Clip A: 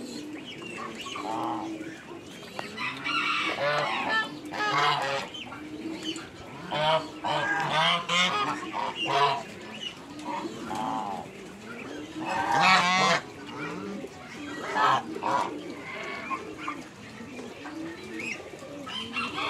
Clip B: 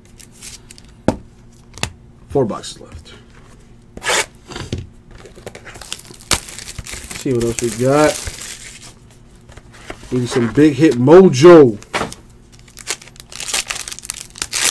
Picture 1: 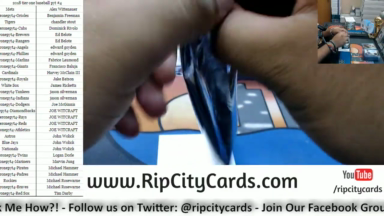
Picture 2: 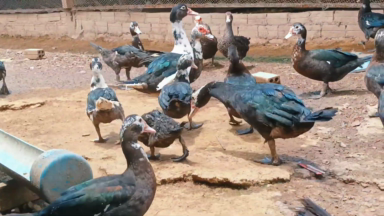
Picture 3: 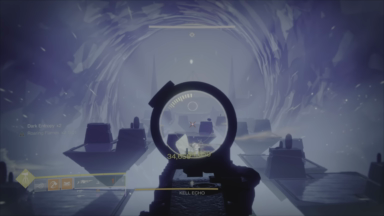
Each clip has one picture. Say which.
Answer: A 2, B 1